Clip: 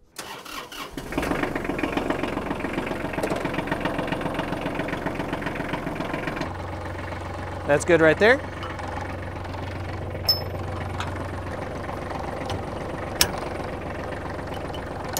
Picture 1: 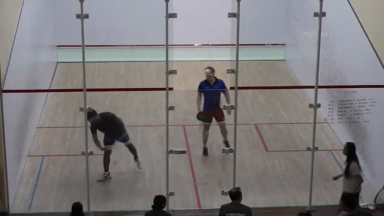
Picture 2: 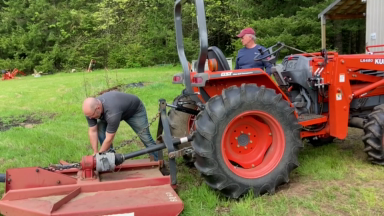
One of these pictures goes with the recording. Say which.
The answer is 2